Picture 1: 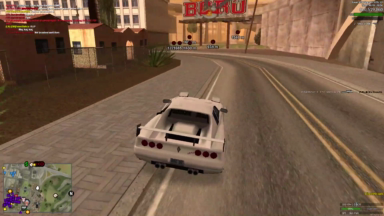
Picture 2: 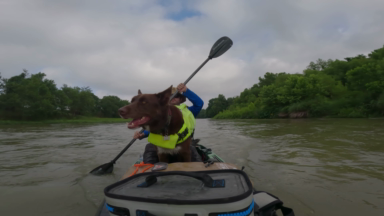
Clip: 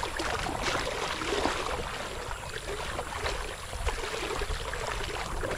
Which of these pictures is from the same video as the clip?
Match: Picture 2